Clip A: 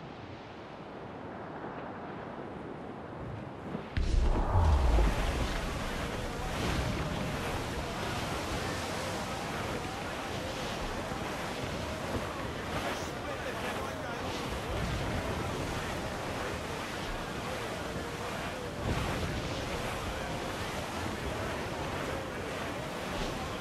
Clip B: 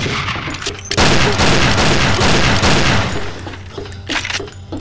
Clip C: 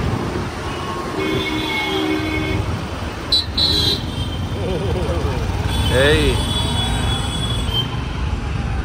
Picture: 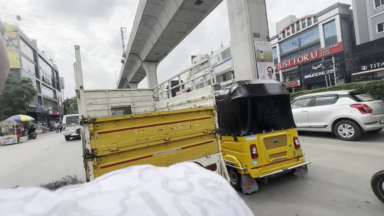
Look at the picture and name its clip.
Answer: C